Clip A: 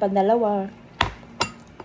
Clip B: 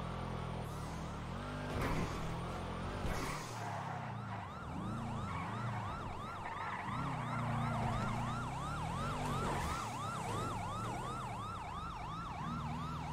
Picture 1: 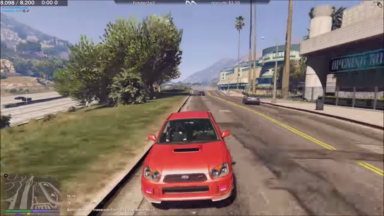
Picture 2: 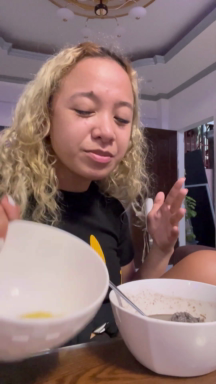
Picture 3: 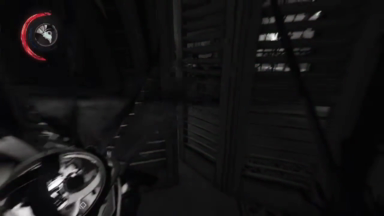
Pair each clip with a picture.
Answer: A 2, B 1